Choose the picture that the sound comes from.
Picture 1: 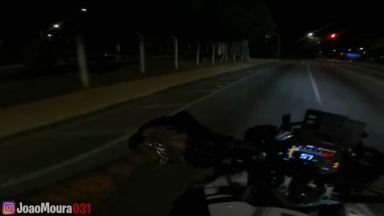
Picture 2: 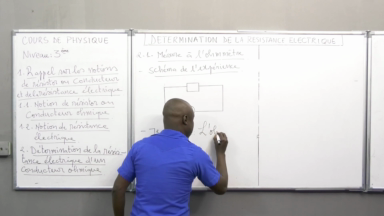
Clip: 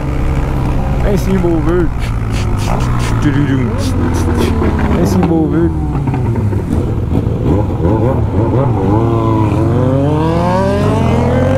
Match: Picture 1